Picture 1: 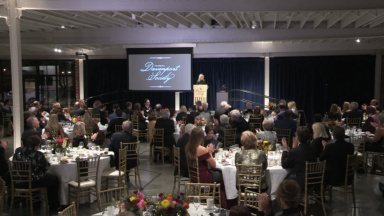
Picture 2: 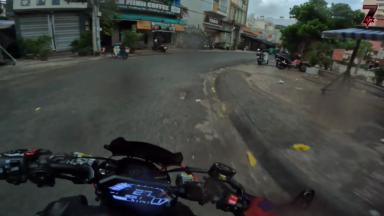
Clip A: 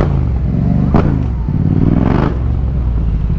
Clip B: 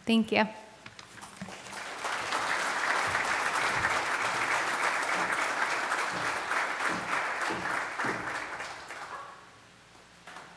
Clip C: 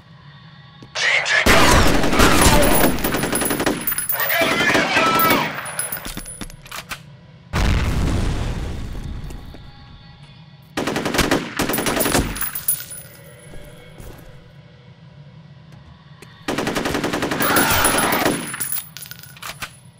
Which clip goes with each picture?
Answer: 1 B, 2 A